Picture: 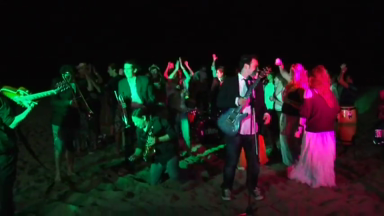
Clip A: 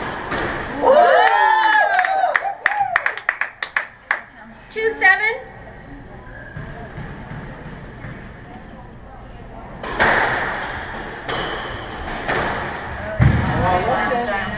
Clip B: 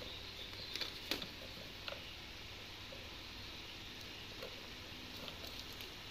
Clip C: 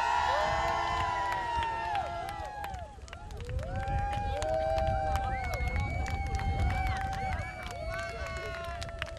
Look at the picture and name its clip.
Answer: C